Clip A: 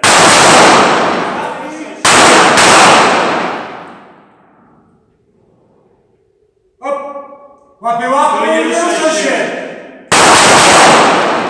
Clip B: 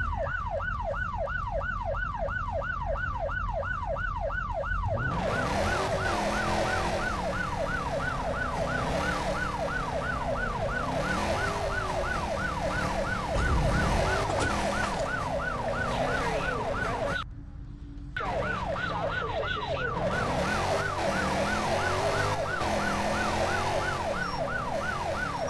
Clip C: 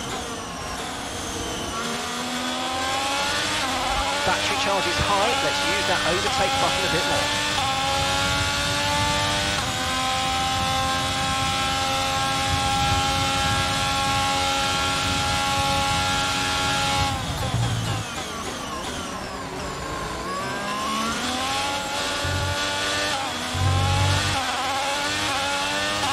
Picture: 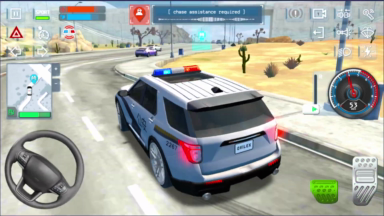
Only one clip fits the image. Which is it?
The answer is B